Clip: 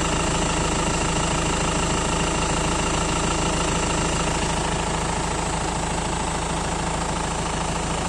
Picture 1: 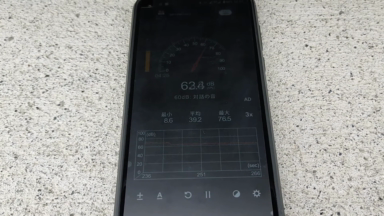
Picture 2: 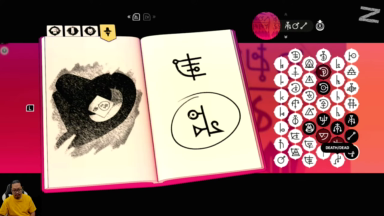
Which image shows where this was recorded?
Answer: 1